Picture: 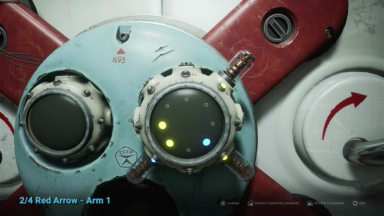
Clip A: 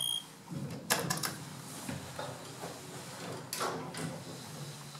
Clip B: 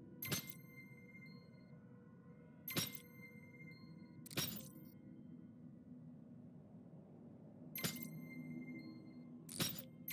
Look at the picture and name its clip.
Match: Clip B